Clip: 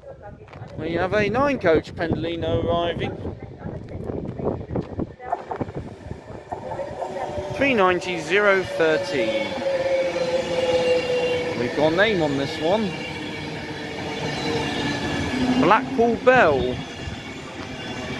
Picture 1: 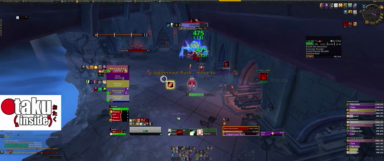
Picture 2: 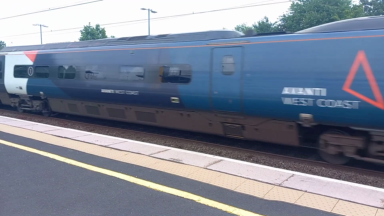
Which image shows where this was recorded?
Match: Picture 2